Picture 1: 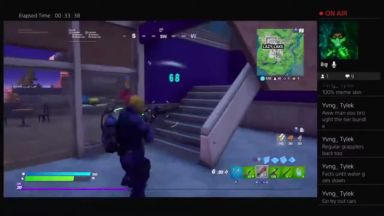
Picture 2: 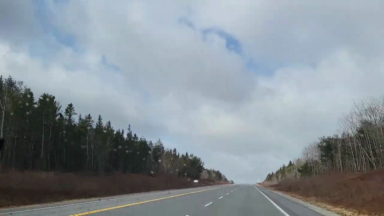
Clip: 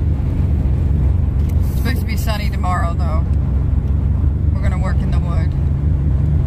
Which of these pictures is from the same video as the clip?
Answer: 2